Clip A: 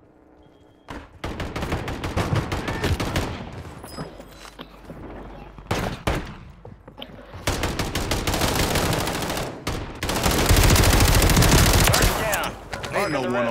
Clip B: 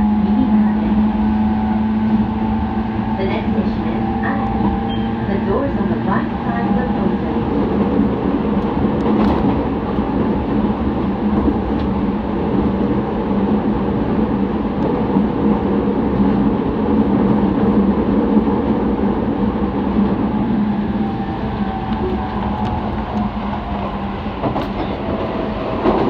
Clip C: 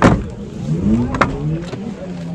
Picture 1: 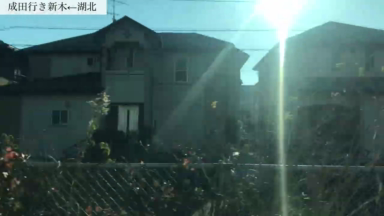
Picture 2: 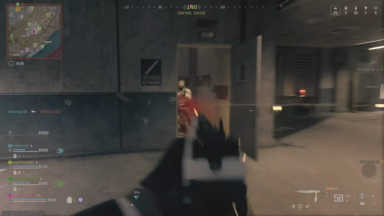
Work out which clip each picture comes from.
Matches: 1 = B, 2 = A